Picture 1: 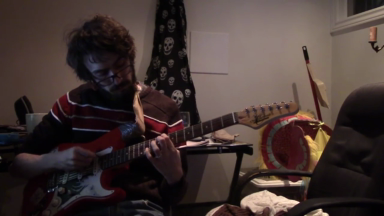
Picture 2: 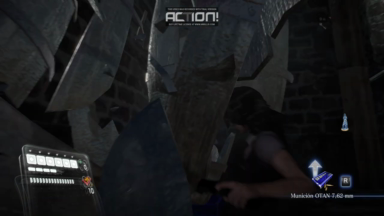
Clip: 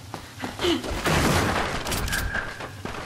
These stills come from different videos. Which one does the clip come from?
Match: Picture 2